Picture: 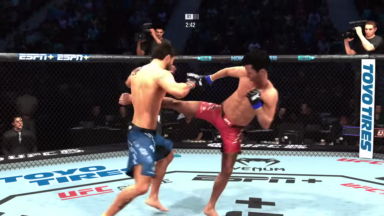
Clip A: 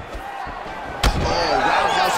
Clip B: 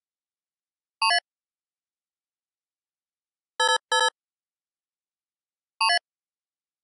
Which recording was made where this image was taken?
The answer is A